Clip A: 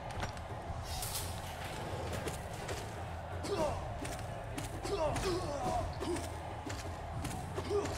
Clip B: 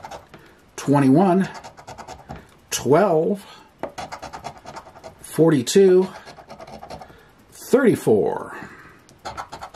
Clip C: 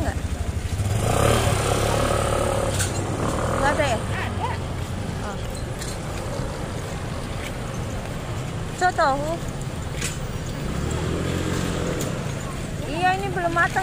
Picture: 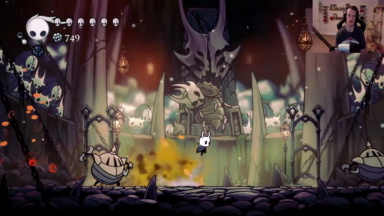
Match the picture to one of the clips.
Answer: A